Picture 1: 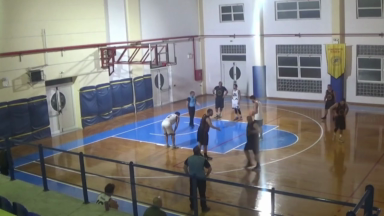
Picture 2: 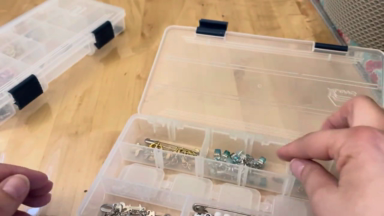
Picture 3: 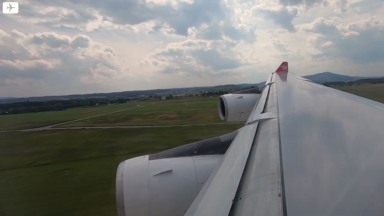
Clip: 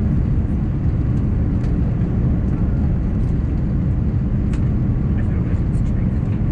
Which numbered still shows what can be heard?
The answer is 3